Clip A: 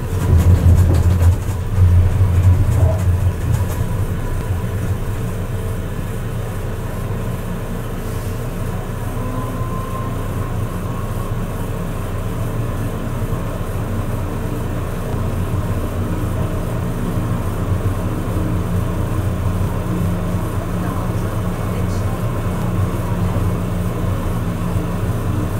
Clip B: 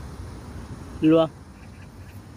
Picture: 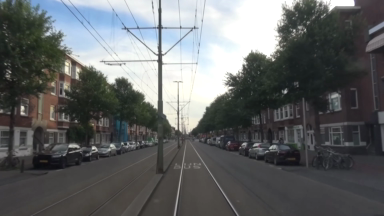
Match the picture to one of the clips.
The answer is A